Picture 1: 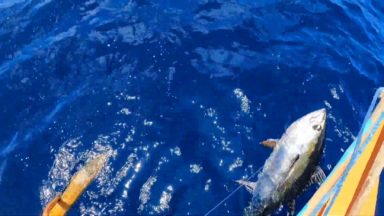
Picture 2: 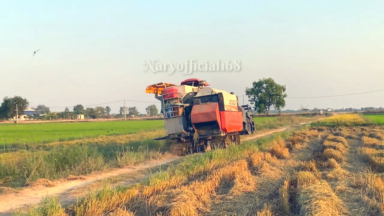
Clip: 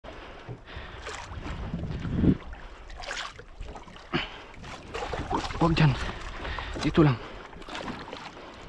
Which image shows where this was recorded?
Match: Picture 1